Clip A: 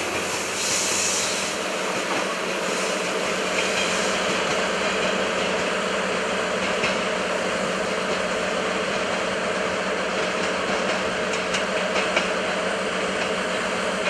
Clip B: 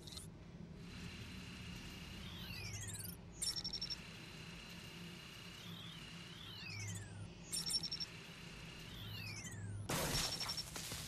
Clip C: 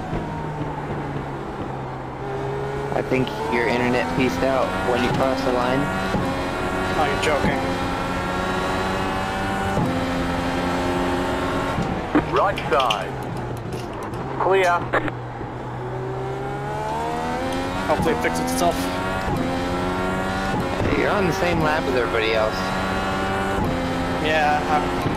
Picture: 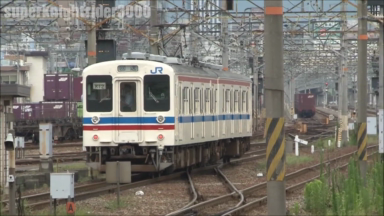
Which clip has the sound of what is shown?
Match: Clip A